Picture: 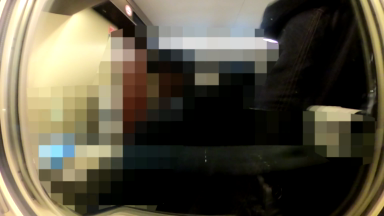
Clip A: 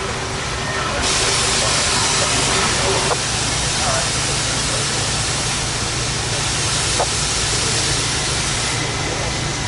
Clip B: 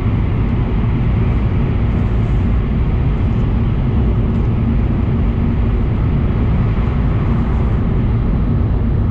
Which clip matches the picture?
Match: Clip B